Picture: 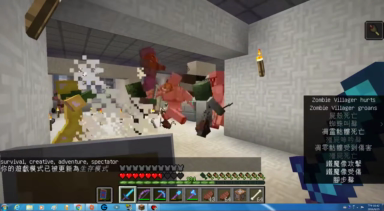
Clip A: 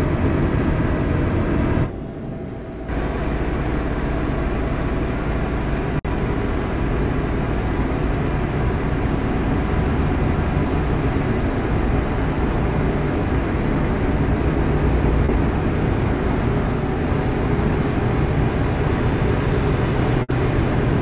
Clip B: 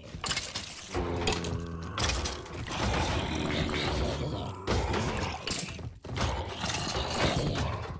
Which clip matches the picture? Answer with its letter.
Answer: B